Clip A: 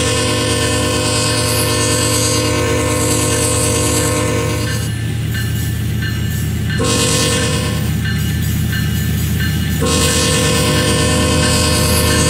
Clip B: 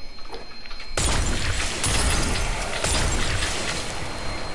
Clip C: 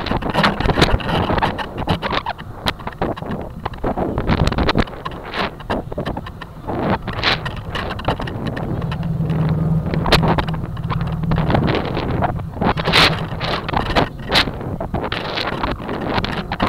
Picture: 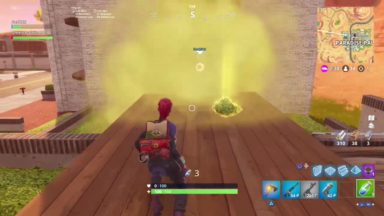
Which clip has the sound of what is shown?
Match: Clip B